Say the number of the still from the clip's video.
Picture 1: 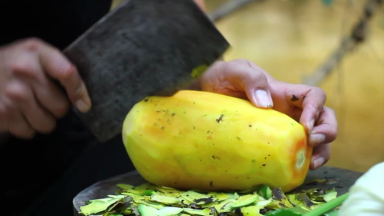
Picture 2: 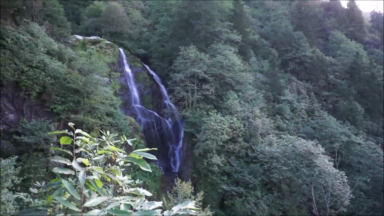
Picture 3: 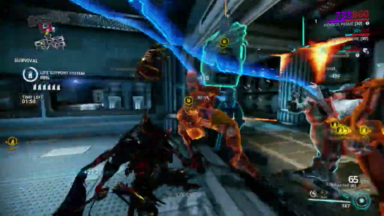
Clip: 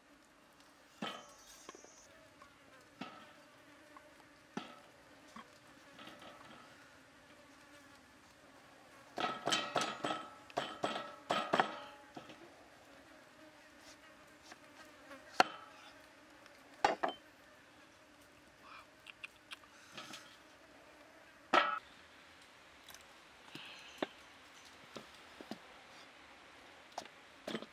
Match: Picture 1